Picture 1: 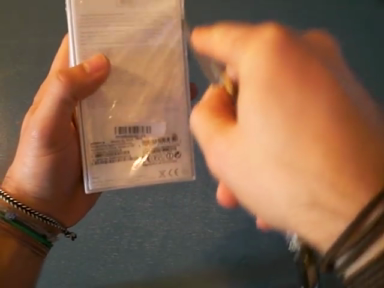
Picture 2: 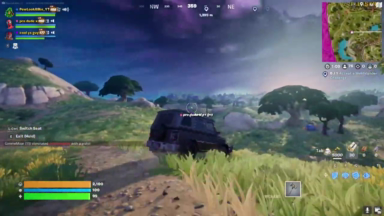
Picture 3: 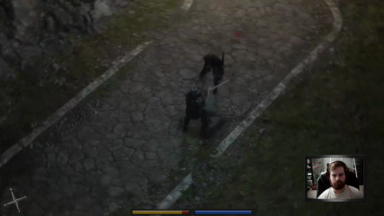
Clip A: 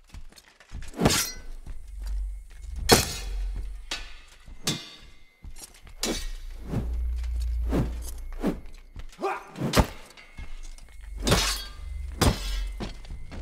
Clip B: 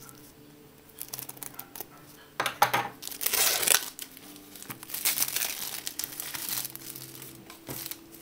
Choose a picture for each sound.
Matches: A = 3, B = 1